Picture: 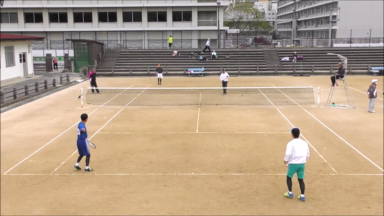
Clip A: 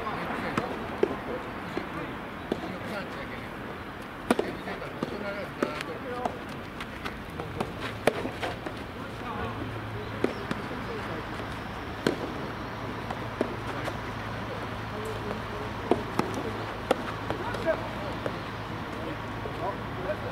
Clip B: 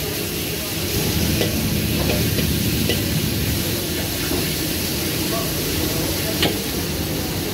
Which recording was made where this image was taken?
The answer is A